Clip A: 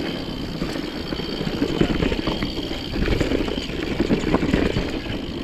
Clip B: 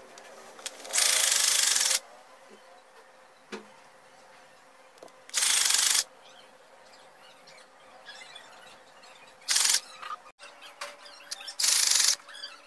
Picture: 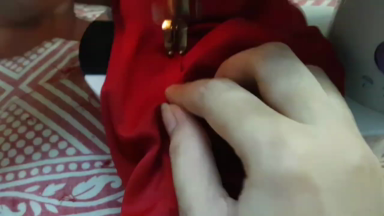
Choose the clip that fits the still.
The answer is B